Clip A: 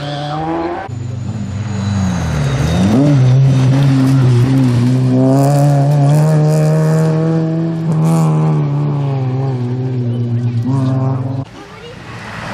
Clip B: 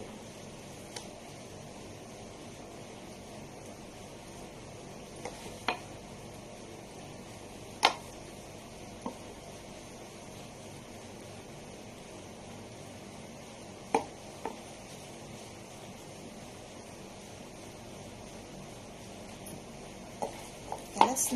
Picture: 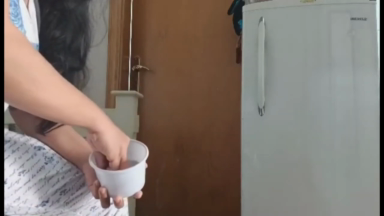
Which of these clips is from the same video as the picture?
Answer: B